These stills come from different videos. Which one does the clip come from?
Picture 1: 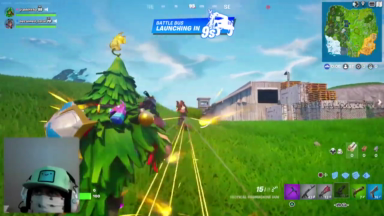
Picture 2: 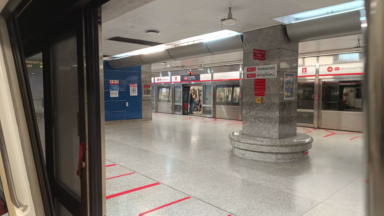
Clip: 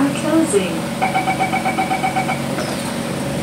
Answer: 2